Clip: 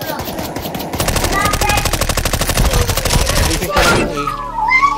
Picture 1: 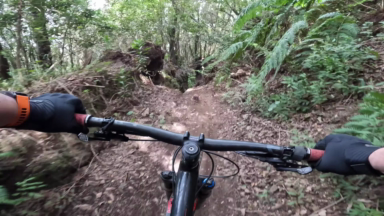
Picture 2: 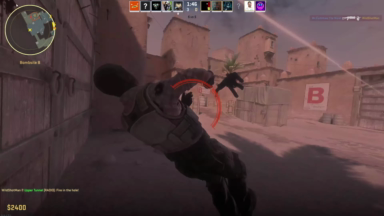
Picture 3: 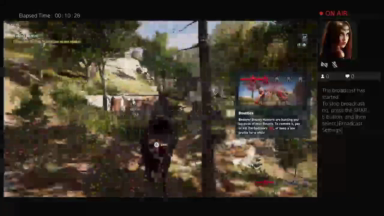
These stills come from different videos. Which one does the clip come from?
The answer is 2